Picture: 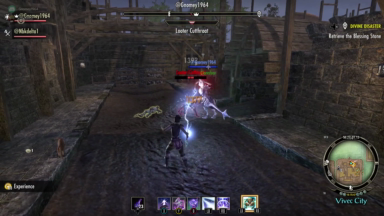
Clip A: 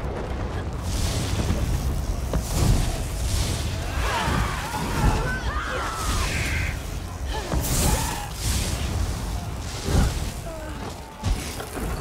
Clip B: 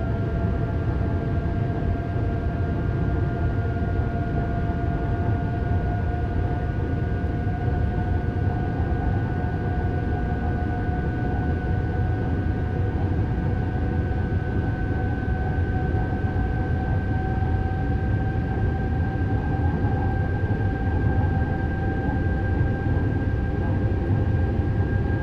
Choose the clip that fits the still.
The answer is A